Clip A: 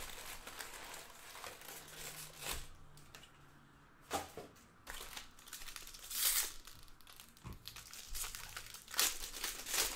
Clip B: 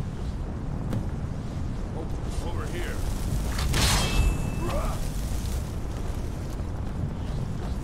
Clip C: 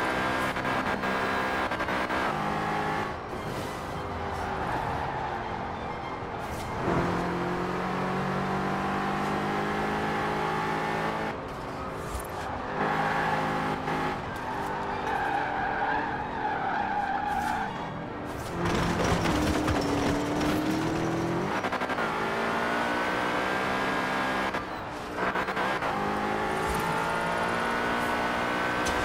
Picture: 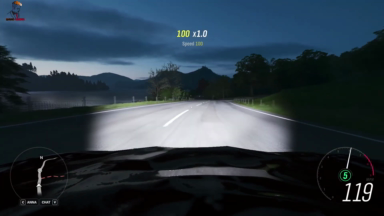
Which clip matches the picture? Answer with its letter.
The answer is C